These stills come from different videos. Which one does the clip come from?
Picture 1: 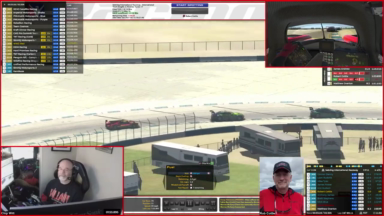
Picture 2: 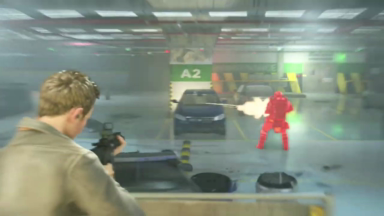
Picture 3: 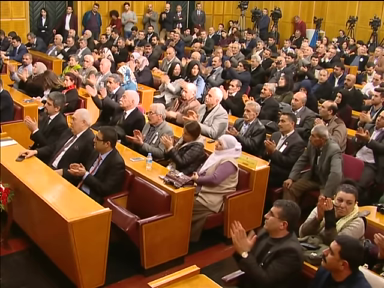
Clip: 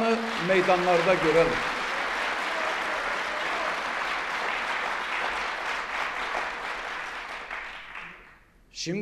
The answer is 3